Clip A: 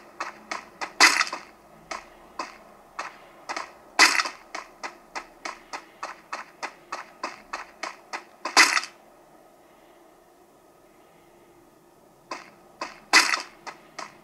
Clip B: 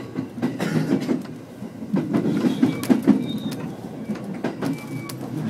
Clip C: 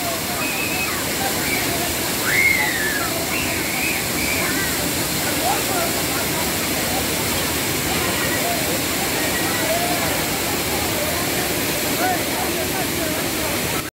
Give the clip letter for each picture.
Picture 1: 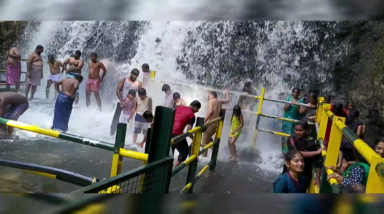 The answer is C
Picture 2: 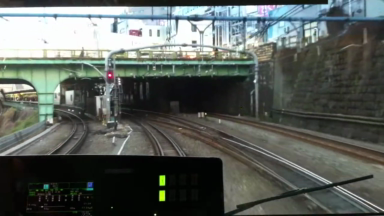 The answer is B